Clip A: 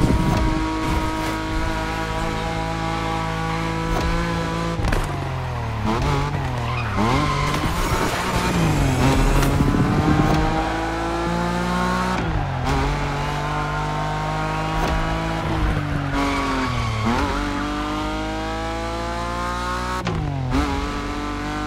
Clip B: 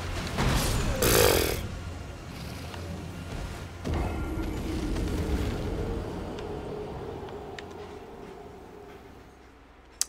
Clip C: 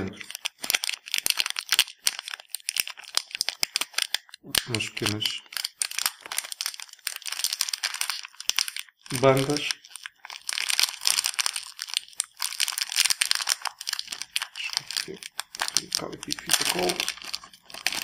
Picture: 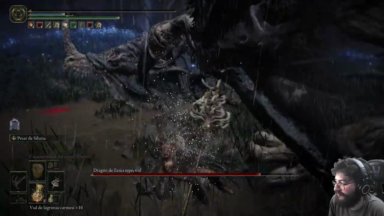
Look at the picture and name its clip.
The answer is B